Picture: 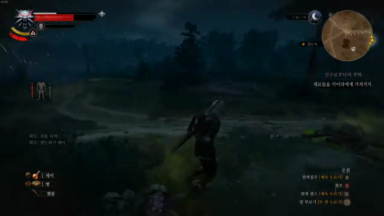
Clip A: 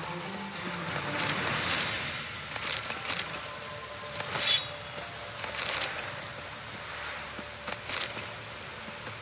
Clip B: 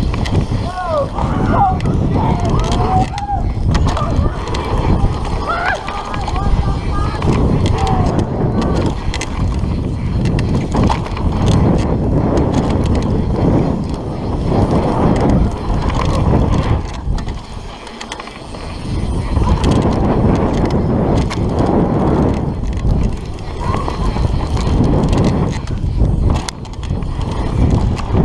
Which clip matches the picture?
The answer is A